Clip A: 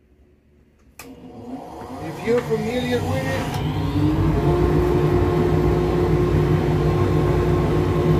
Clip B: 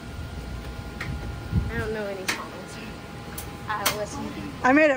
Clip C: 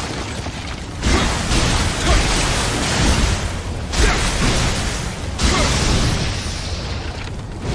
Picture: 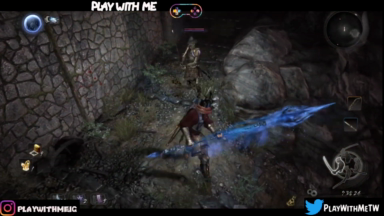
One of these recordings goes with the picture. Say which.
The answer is C